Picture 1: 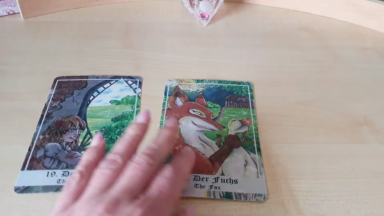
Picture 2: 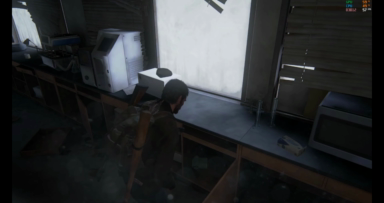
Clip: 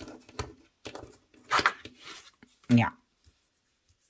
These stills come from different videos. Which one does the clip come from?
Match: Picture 1